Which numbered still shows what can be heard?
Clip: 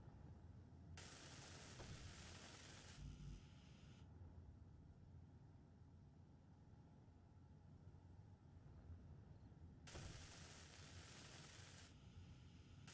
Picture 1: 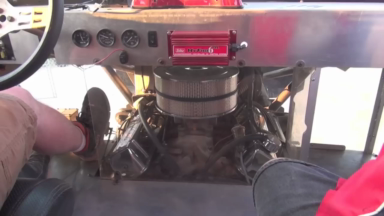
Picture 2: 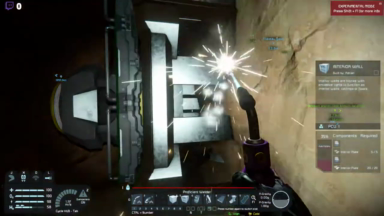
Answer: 2